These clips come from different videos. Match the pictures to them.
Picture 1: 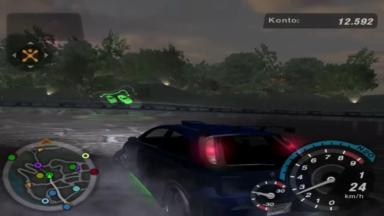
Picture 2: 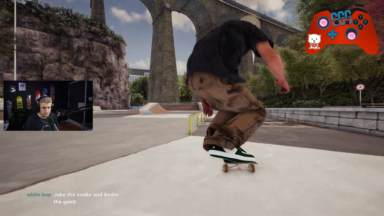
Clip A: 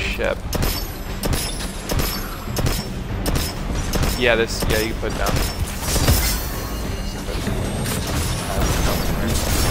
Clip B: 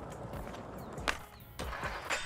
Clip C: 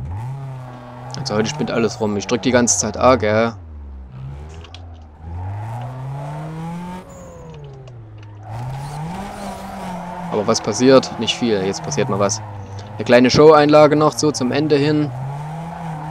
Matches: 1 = C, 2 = B